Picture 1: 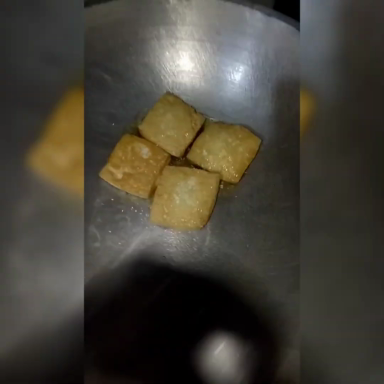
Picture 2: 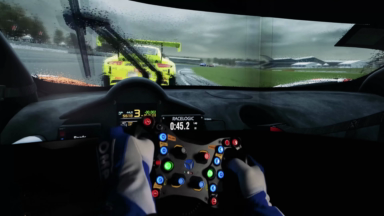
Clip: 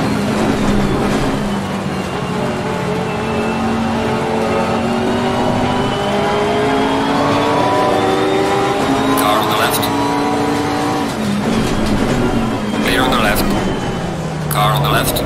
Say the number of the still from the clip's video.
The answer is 2